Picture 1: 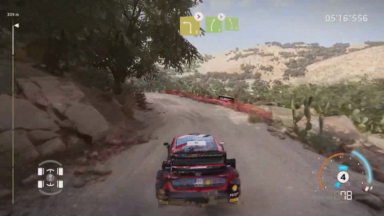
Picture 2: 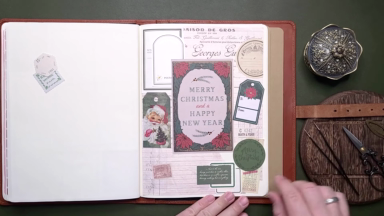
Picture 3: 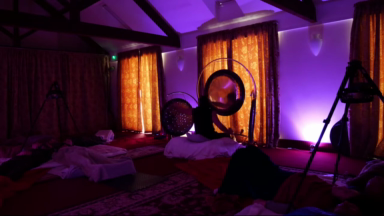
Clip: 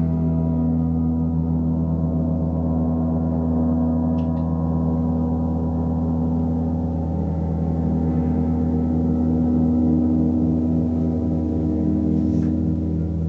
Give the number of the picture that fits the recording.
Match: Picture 3